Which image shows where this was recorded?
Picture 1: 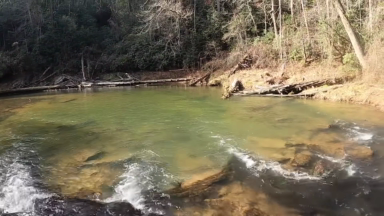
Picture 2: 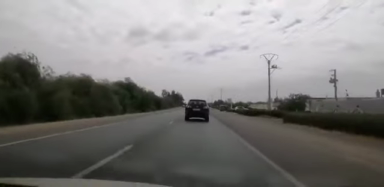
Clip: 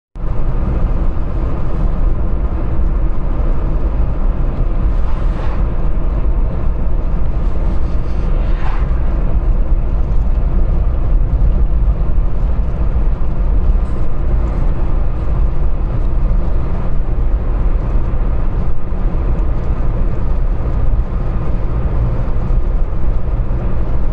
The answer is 2